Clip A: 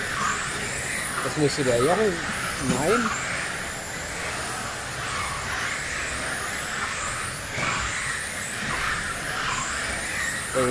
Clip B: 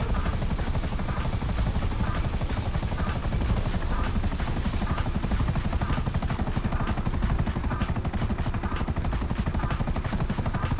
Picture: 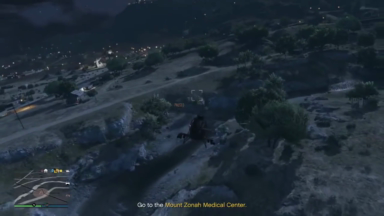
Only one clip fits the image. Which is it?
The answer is B